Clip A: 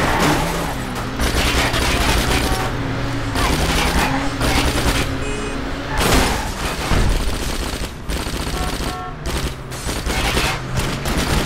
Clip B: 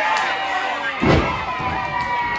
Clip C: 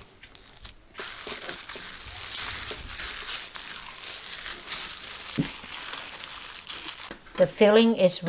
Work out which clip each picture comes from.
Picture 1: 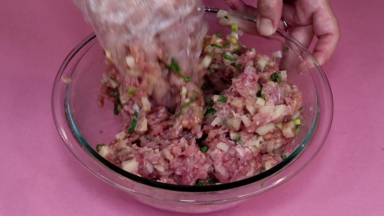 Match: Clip C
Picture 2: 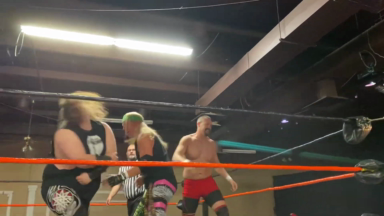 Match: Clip B